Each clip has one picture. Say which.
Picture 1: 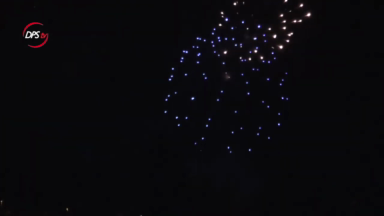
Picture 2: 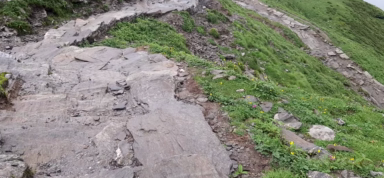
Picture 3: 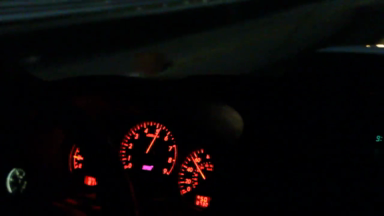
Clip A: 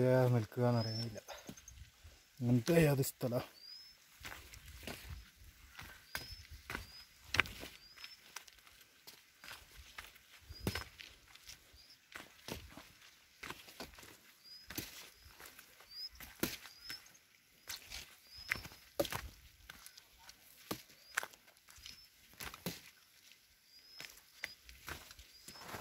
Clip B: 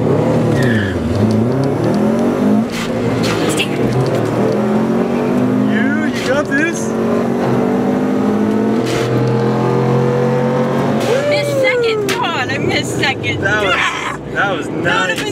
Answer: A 2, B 3